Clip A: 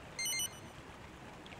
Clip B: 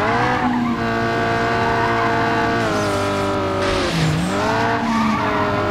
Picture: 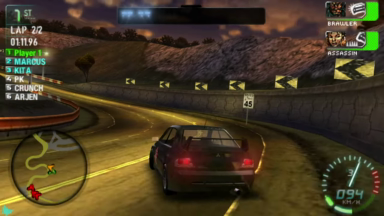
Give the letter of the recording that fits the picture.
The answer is B